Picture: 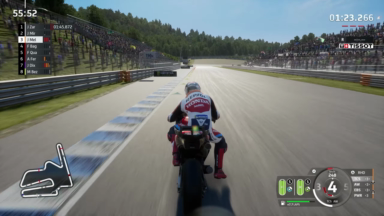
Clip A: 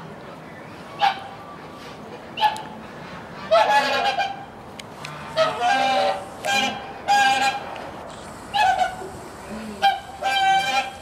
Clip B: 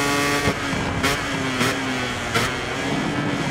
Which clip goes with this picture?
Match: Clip B